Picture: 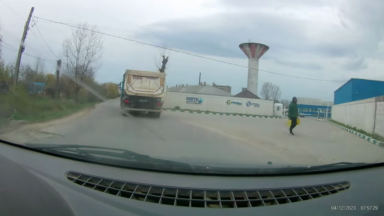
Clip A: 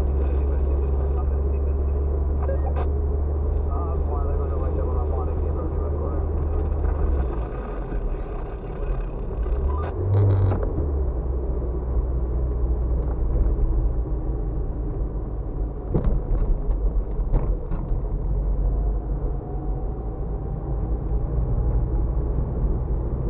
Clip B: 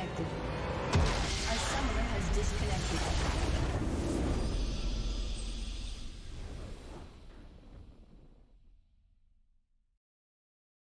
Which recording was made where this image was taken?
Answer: A